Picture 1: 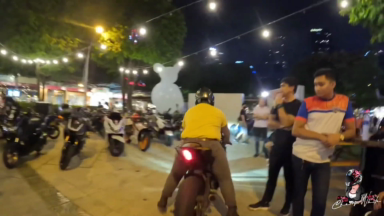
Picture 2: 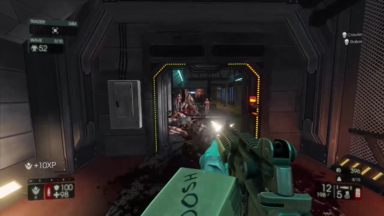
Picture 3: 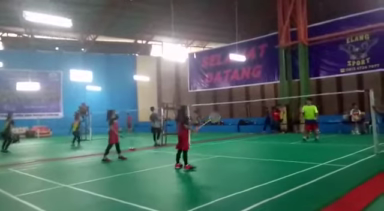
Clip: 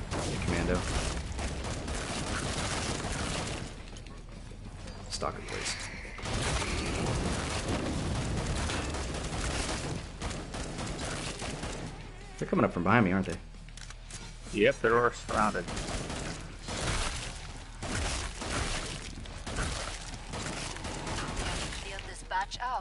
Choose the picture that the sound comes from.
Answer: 2